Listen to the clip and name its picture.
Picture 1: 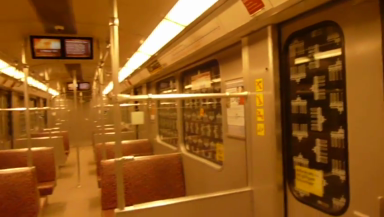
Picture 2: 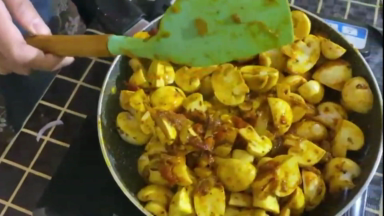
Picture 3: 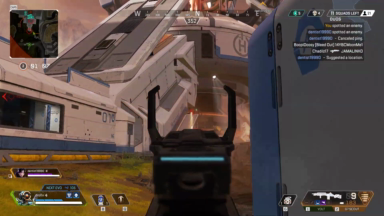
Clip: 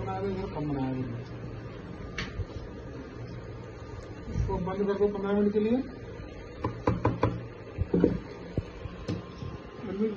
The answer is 2